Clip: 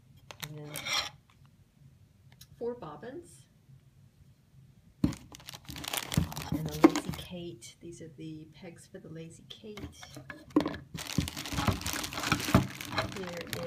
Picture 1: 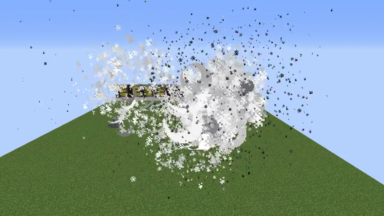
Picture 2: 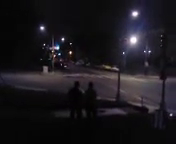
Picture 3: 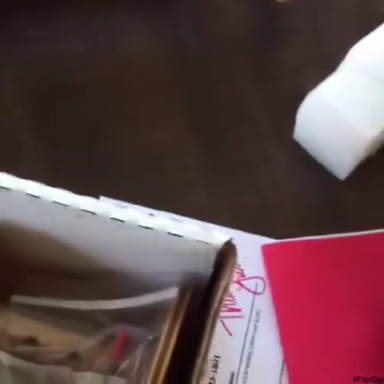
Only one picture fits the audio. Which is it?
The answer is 3